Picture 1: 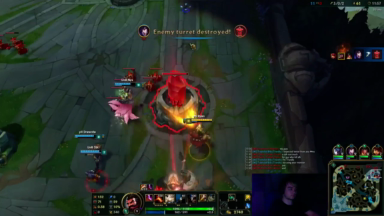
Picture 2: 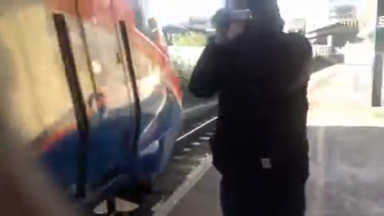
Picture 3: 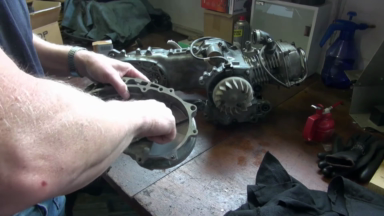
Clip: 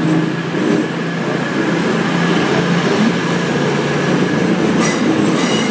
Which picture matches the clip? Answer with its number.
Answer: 2